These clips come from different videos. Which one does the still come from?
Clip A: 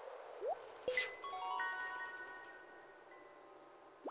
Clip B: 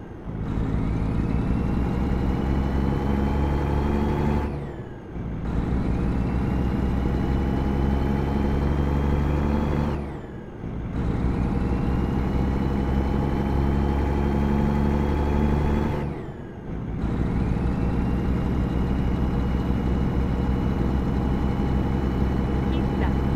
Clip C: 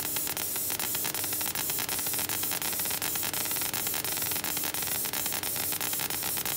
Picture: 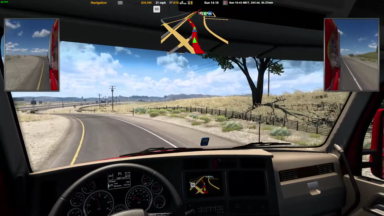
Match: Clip B